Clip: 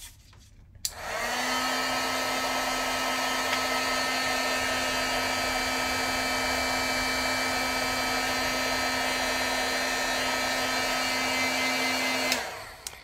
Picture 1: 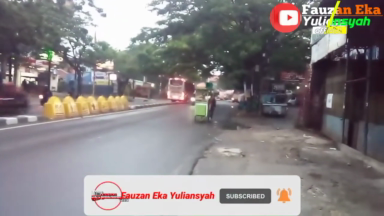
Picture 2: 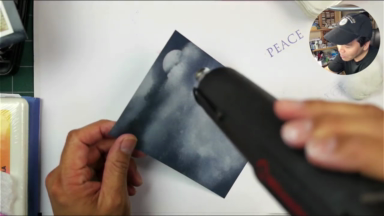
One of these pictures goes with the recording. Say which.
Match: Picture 2